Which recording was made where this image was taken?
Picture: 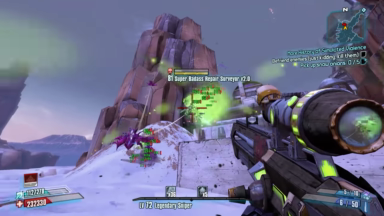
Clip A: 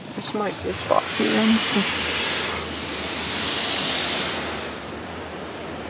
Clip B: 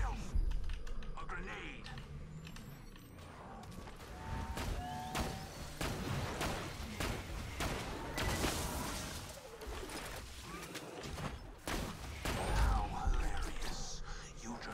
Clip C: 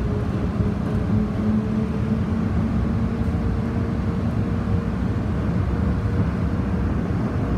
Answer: B